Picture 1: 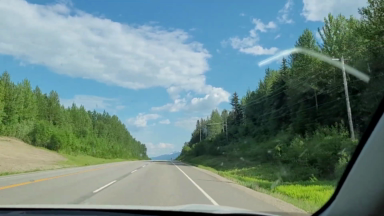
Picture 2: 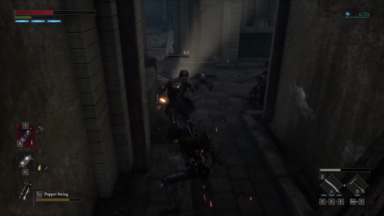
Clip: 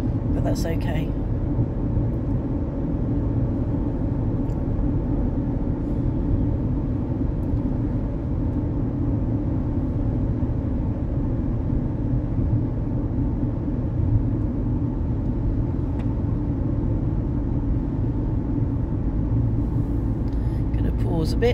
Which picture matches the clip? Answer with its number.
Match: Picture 1